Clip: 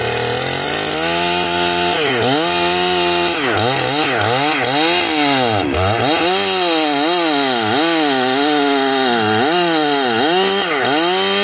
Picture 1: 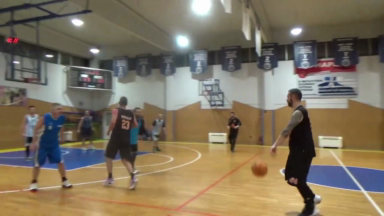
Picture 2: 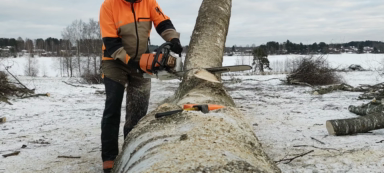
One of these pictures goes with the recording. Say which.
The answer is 2